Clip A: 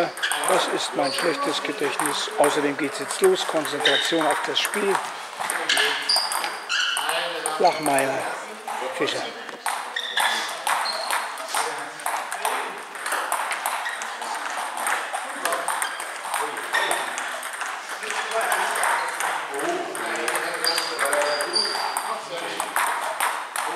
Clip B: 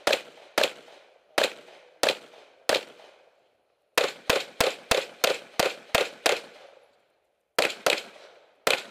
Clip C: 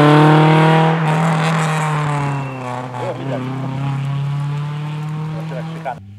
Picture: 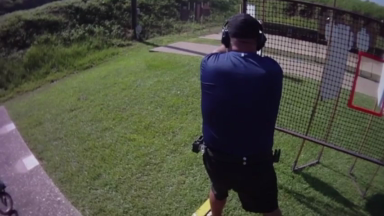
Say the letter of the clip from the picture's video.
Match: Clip B